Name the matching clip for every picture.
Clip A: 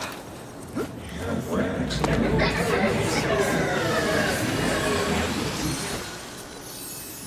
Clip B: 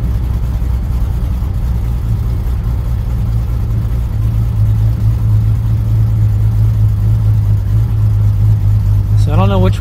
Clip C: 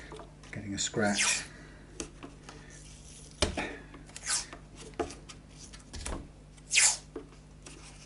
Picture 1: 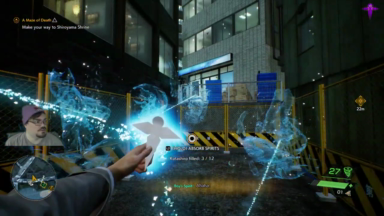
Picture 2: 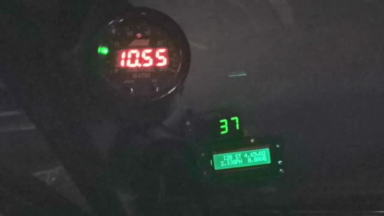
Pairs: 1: A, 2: B